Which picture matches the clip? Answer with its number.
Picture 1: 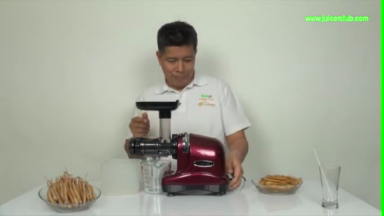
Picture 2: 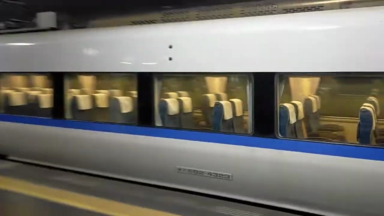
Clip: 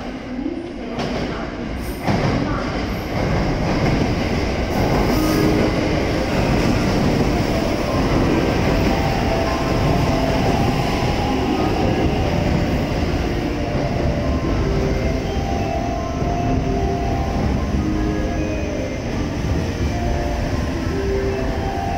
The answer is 2